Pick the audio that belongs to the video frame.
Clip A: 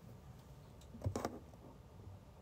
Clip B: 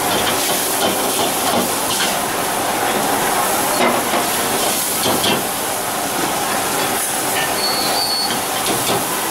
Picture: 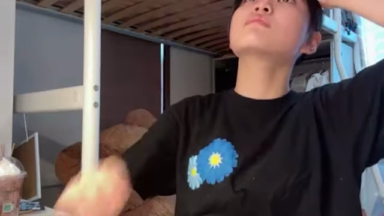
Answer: A